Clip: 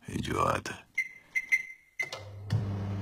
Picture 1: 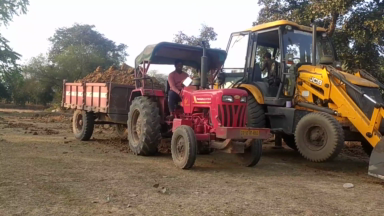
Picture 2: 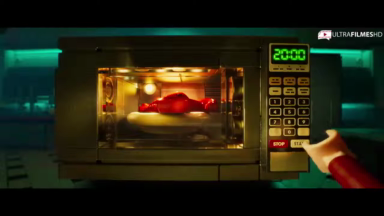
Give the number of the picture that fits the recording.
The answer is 2